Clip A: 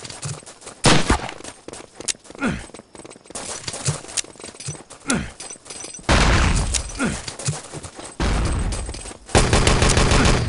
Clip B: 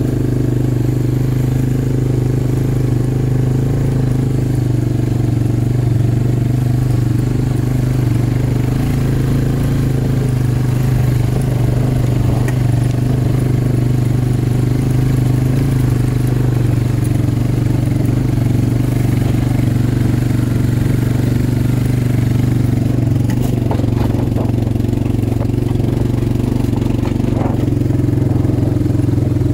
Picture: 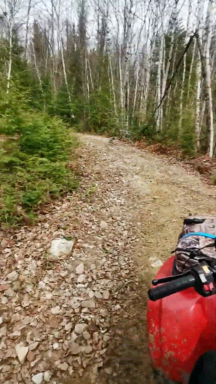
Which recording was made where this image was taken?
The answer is B